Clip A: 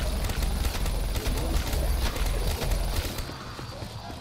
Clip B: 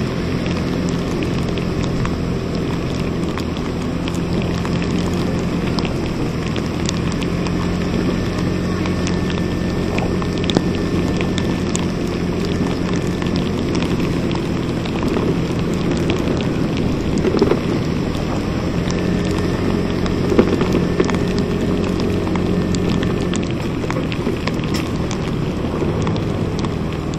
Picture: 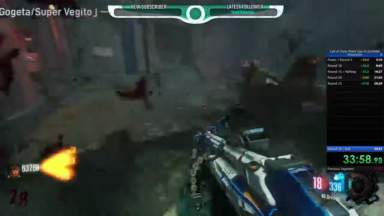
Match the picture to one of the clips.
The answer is A